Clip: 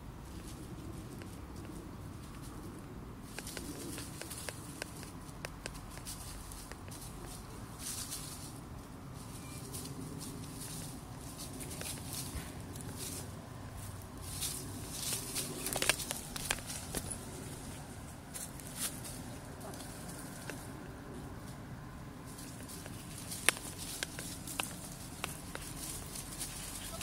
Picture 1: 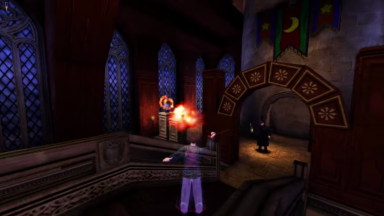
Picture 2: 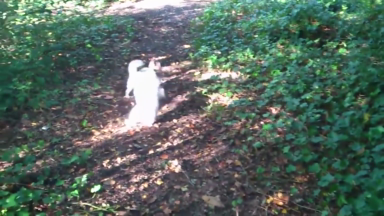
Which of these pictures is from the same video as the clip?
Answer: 2